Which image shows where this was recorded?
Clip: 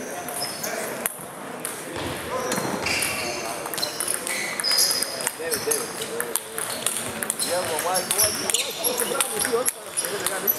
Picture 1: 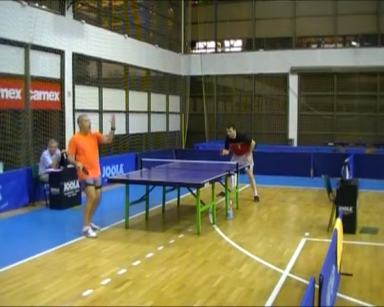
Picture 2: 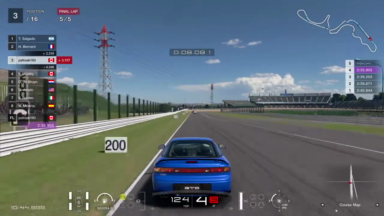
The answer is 1